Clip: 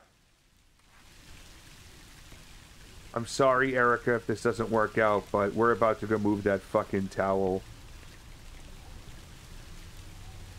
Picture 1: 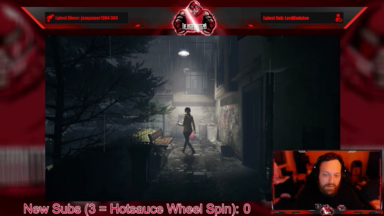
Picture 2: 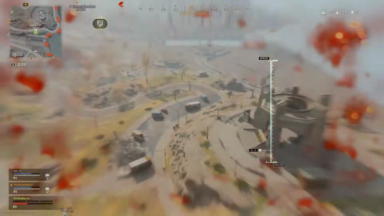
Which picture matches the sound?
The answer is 1